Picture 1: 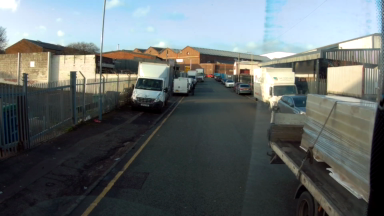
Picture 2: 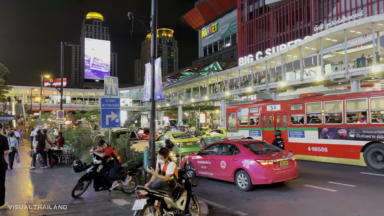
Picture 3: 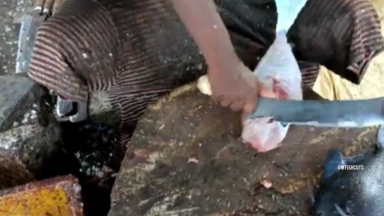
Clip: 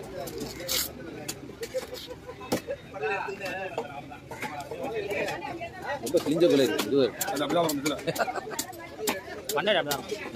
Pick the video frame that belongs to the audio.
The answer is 3